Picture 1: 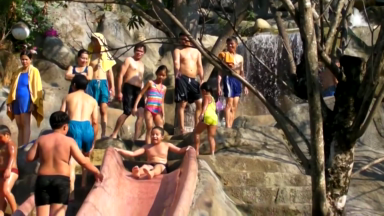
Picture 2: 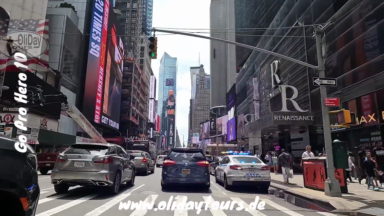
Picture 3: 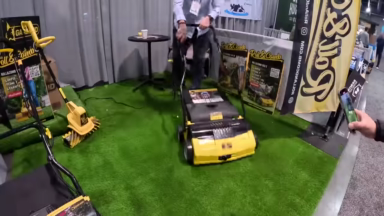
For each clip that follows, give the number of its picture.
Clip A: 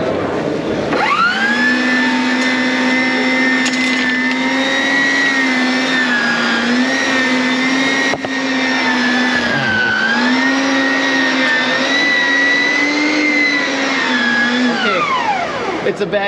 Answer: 3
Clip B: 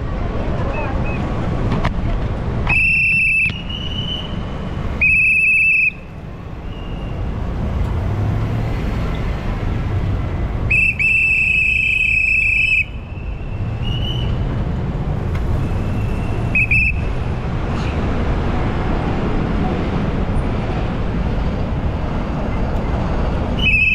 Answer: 2